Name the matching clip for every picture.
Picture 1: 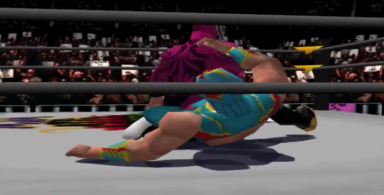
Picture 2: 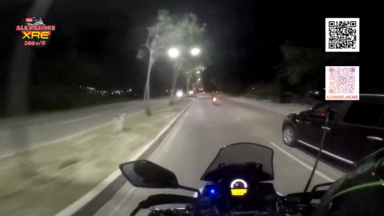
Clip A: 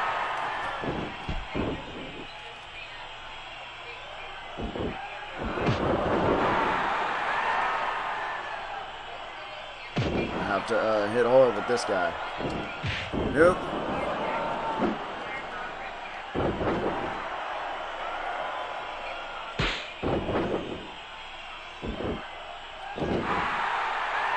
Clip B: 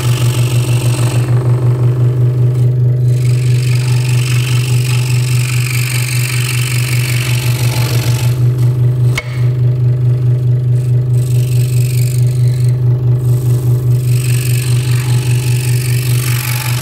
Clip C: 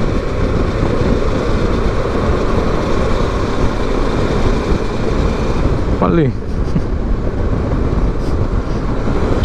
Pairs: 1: A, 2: C